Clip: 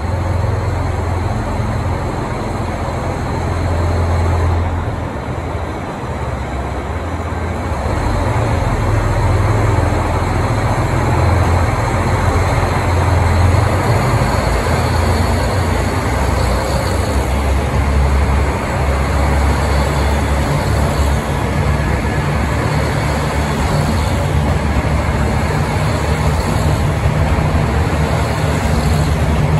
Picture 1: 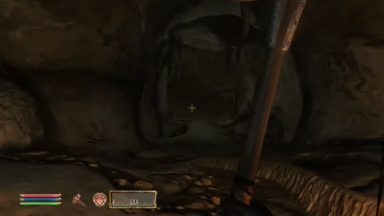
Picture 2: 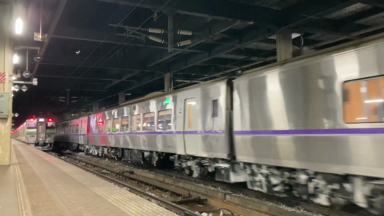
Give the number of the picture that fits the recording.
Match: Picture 2